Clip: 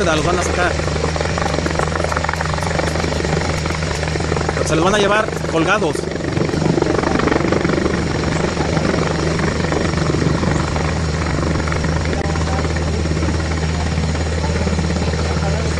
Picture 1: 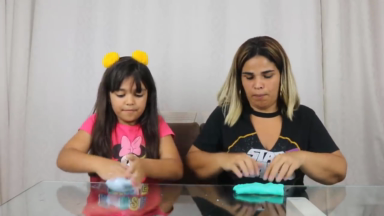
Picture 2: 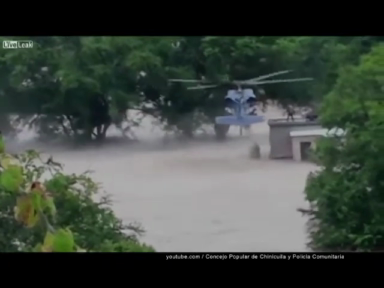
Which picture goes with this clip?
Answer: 2